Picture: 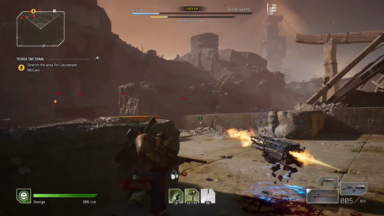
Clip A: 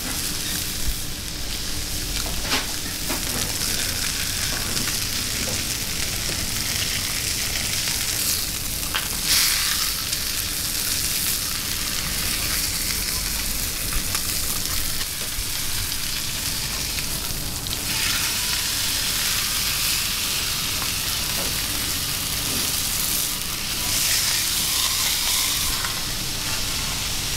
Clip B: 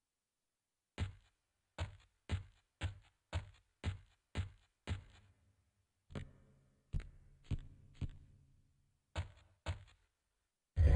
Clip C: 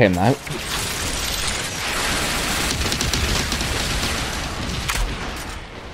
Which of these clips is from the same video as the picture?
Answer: C